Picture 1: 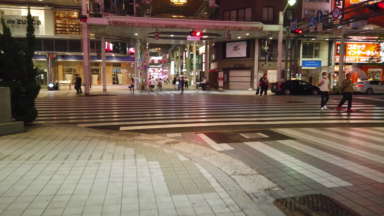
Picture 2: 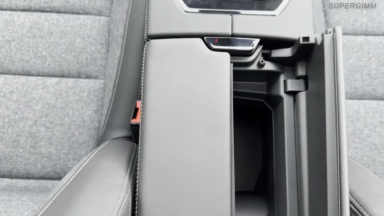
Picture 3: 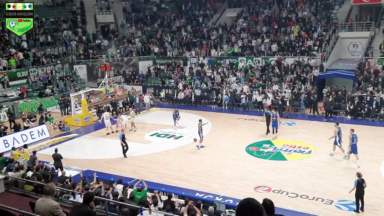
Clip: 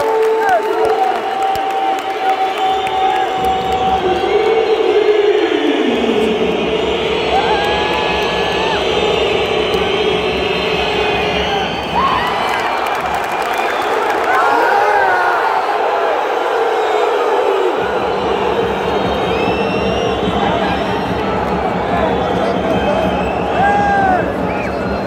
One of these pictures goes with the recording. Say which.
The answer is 3